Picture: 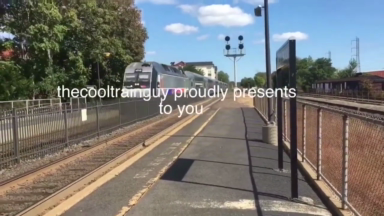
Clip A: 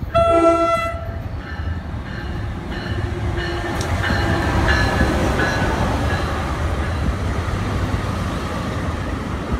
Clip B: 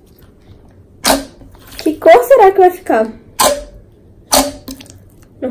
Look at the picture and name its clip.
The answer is A